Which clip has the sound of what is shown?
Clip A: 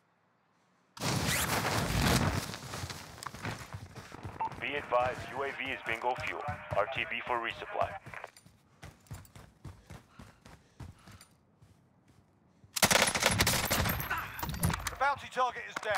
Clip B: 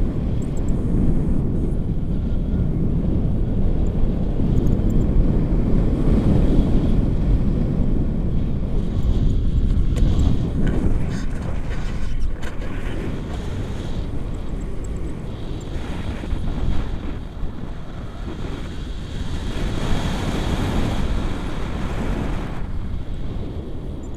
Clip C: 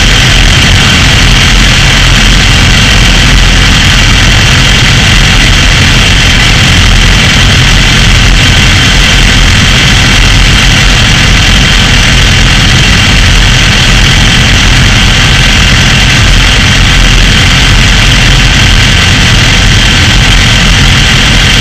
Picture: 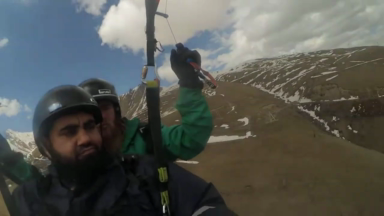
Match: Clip B